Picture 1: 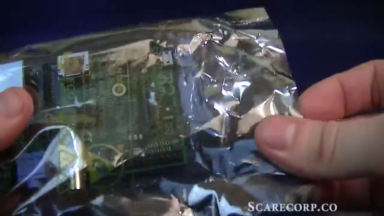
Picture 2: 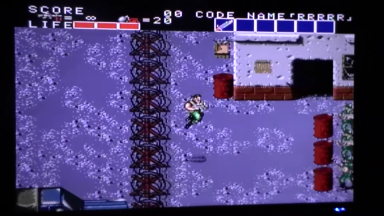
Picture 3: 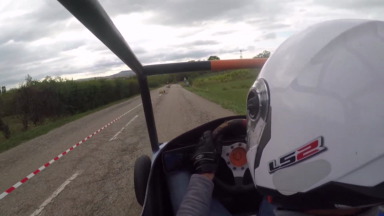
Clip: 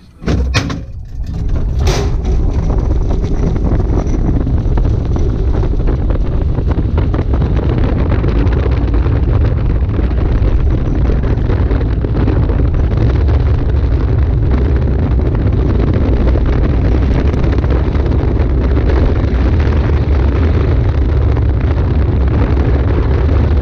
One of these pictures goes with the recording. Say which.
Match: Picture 3